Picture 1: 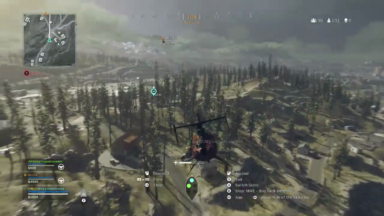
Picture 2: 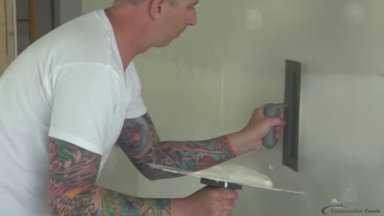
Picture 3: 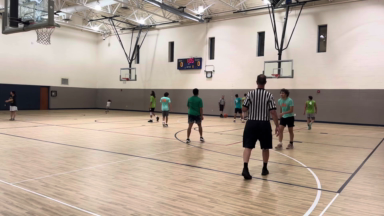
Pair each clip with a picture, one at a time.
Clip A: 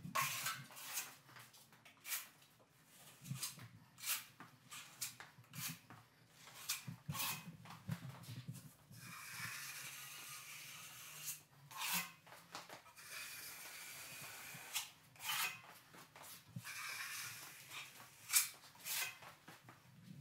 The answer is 2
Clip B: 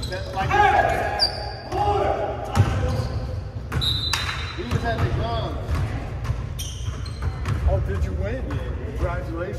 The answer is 3